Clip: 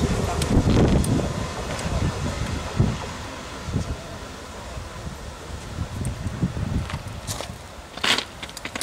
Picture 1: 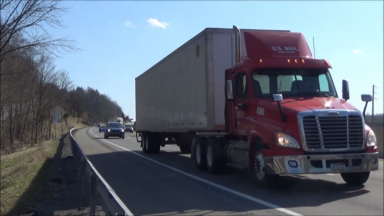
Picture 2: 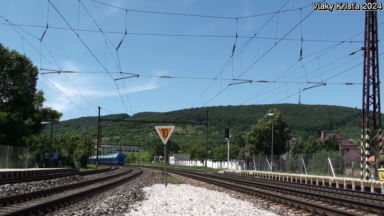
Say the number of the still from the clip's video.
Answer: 2